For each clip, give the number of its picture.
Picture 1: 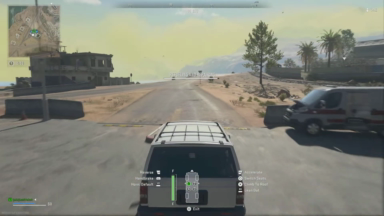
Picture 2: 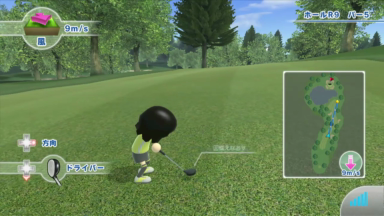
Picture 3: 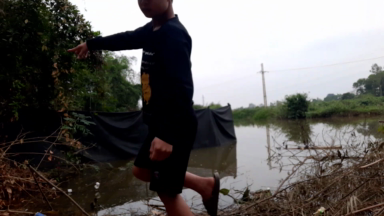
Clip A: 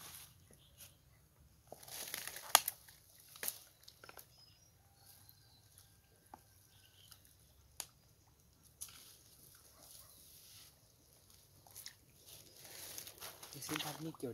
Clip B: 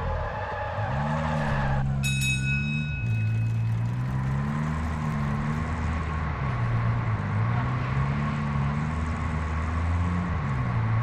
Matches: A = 3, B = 1